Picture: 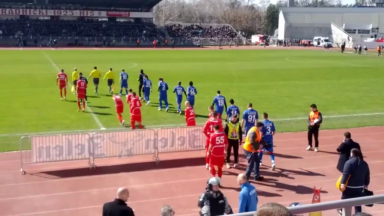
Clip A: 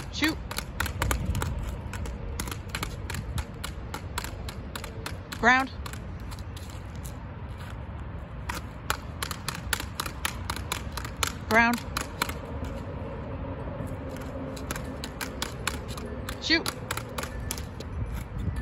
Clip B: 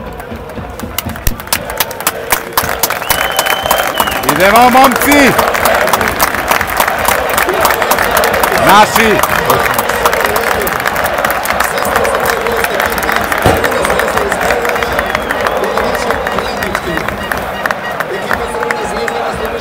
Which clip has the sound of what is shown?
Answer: B